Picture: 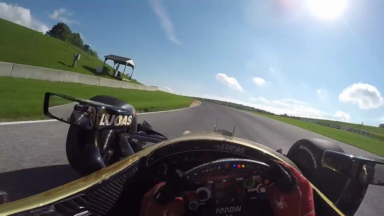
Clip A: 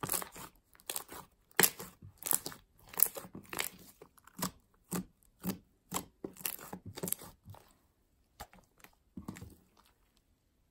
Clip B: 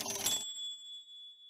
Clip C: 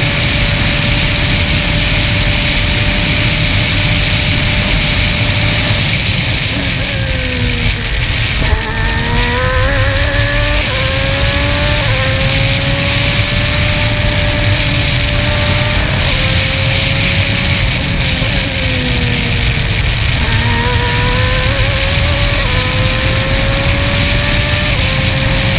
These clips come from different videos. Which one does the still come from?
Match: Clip C